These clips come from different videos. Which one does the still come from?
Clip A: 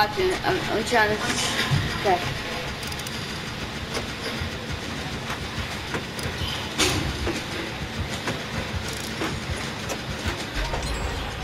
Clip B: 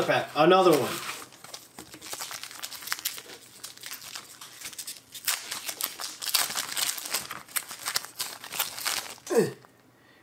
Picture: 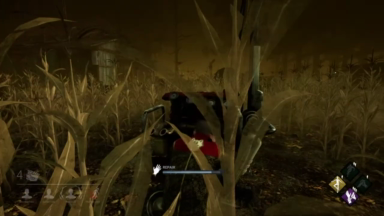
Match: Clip A